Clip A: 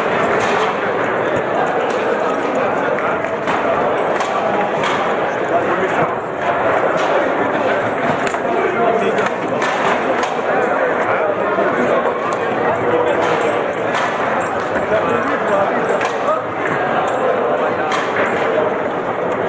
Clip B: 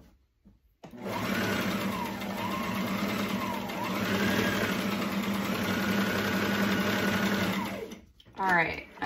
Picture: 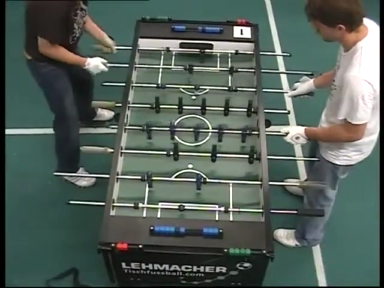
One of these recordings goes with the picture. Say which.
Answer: A